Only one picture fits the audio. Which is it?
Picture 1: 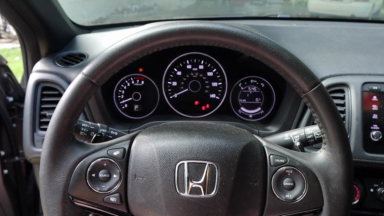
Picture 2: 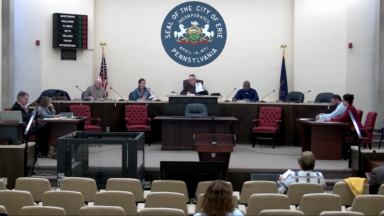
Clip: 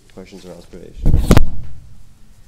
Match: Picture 2